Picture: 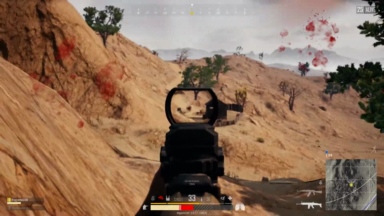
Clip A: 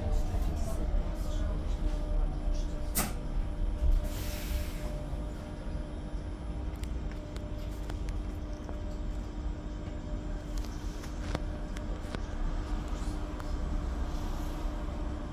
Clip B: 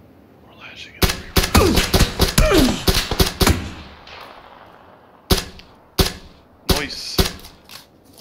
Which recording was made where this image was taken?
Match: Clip B